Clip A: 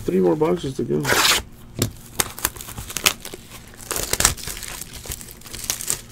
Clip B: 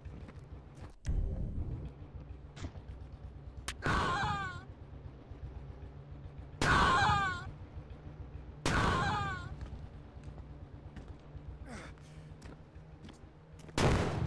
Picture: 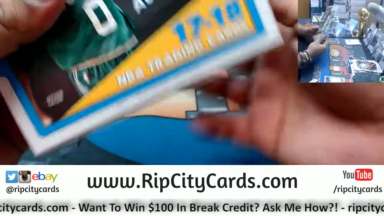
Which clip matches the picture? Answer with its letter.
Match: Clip A